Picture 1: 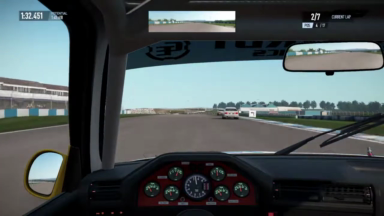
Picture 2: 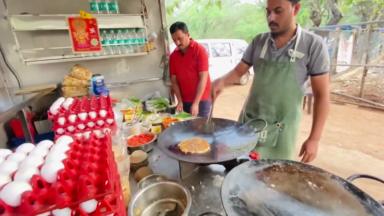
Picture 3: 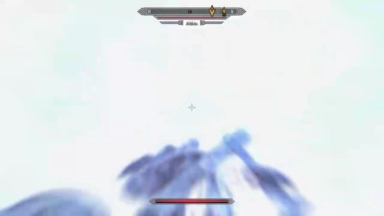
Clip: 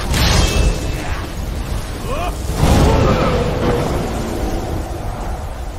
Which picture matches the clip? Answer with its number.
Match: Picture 3